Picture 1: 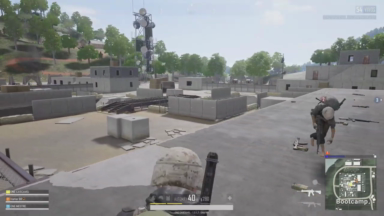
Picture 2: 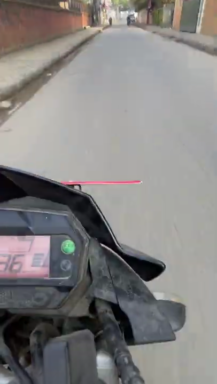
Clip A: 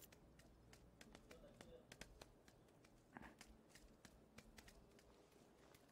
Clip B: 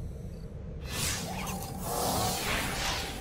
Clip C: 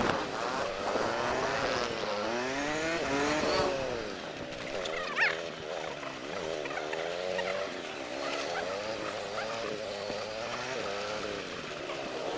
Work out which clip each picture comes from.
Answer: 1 A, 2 C